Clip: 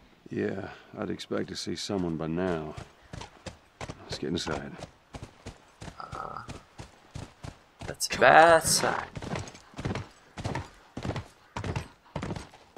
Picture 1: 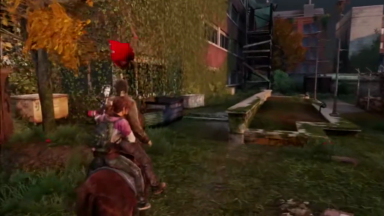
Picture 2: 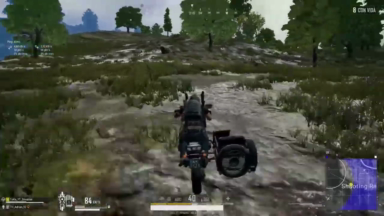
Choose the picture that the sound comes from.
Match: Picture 1